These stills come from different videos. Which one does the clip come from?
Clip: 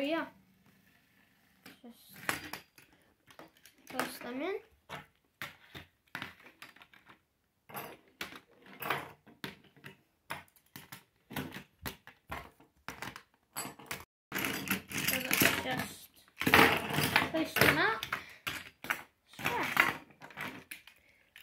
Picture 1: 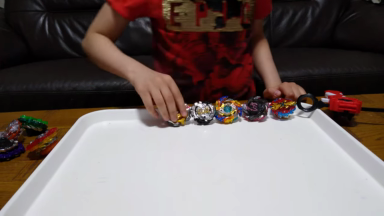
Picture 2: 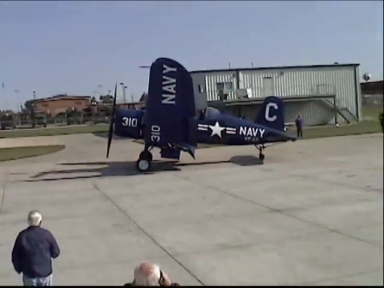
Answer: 1